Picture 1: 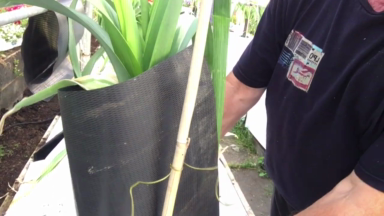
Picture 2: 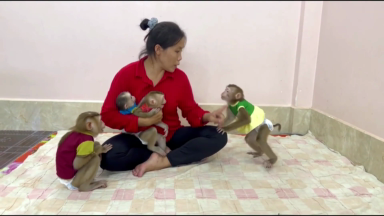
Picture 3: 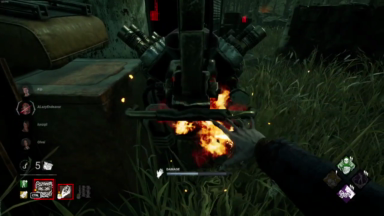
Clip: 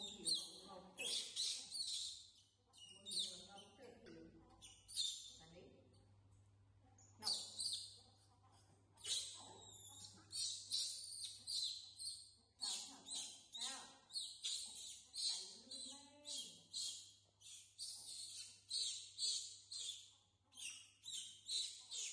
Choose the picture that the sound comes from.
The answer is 2